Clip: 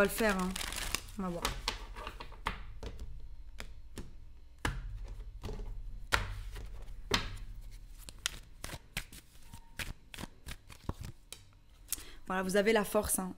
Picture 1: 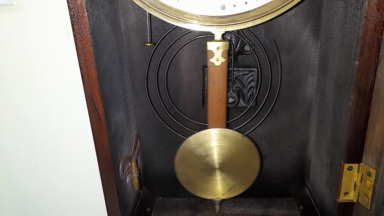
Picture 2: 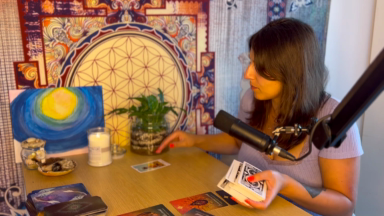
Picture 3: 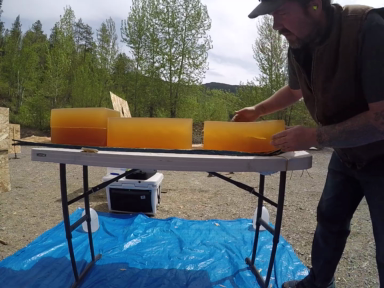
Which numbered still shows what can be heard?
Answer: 2